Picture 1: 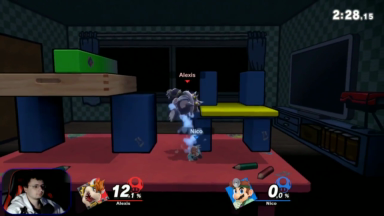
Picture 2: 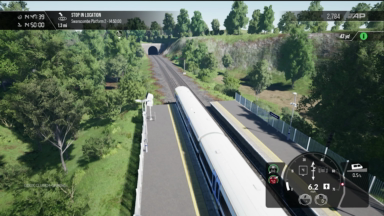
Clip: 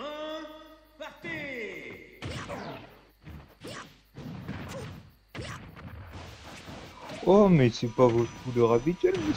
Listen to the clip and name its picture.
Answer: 1